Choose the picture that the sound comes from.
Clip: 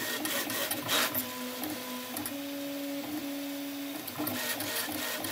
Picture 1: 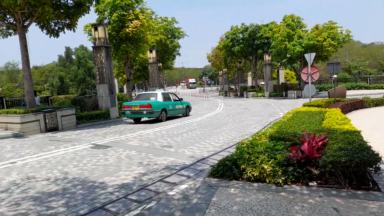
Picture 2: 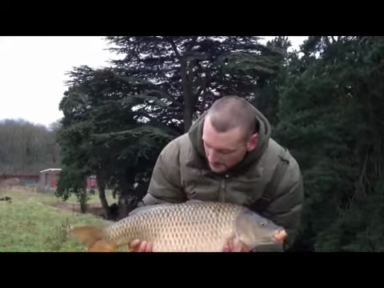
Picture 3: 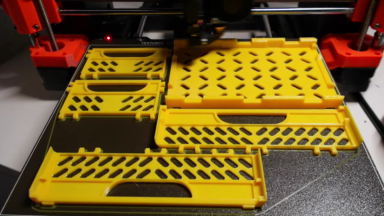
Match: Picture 3